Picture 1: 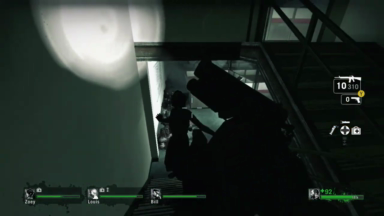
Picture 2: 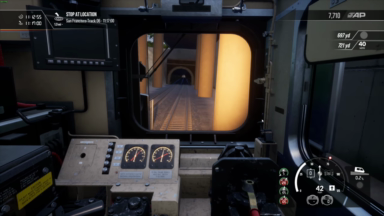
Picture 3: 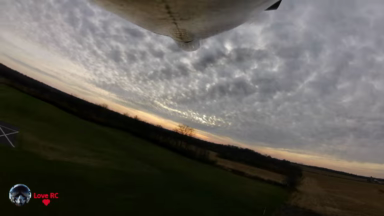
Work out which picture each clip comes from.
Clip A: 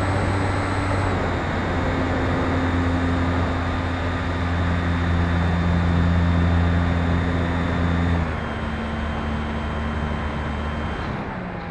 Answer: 3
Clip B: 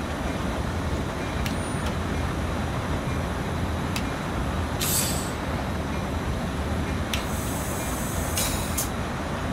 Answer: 2